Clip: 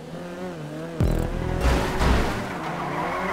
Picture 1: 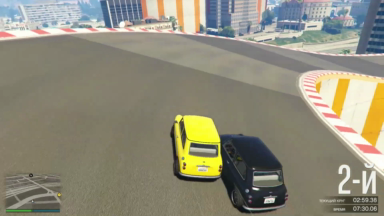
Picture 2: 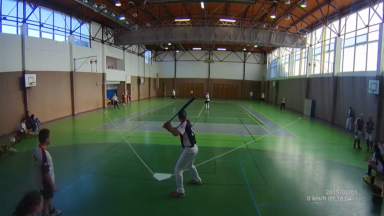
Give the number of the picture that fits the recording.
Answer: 1